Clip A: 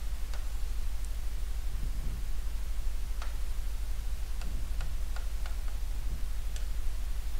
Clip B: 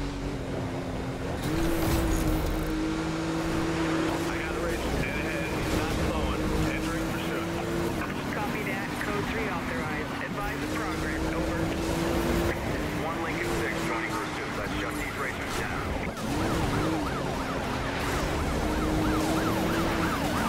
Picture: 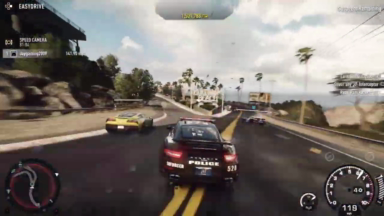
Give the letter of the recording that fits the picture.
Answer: B